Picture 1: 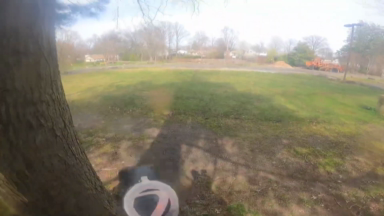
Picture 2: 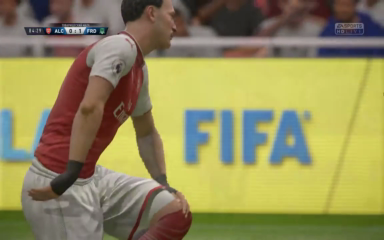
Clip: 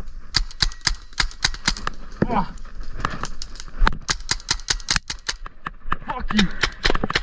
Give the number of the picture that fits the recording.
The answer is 1